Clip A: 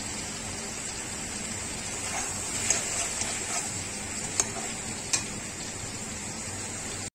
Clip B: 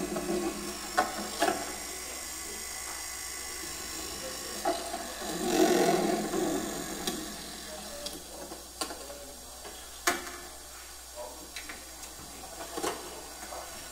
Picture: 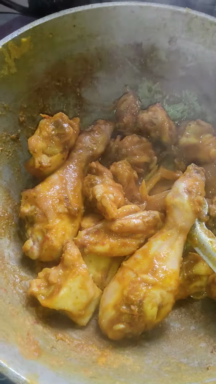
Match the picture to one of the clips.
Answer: A